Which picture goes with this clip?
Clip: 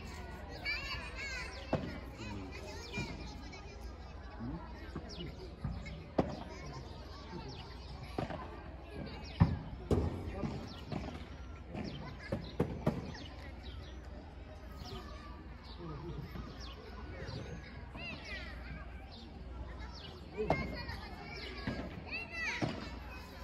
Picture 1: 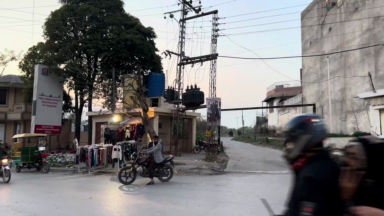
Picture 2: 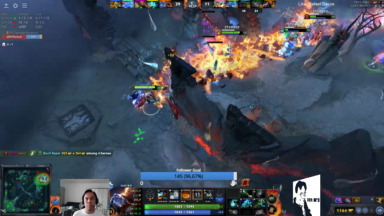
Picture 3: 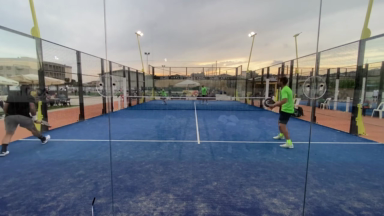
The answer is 3